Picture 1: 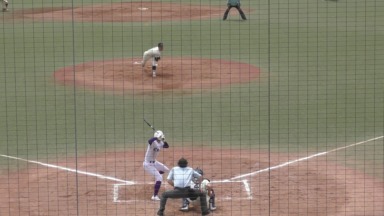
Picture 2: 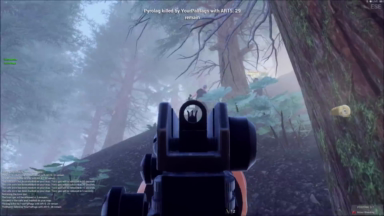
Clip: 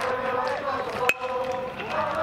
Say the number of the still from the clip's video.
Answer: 1